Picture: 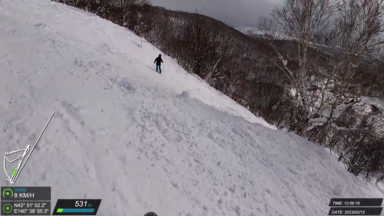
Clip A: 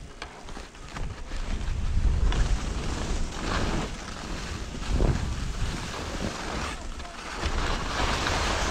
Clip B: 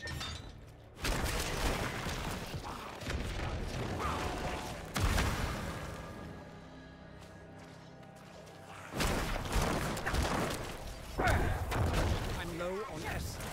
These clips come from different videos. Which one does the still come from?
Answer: A